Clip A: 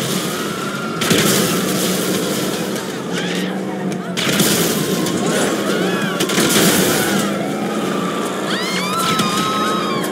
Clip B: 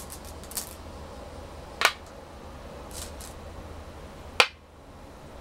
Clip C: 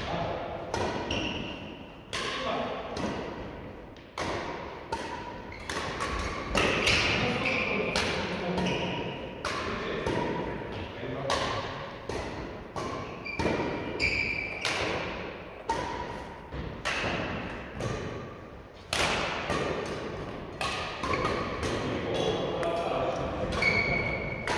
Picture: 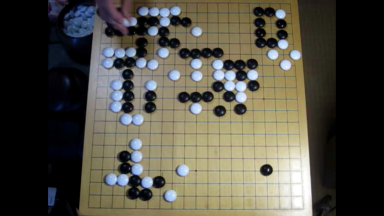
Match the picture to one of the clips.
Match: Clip B